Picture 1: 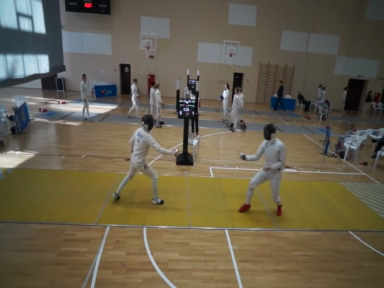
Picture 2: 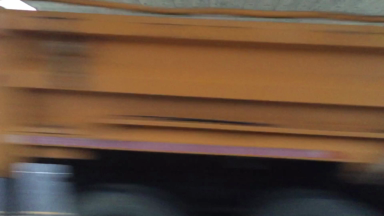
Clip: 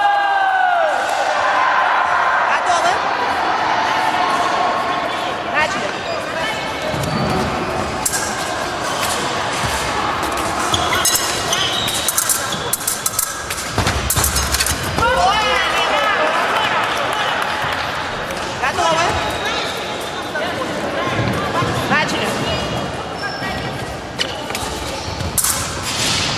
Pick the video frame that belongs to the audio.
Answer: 1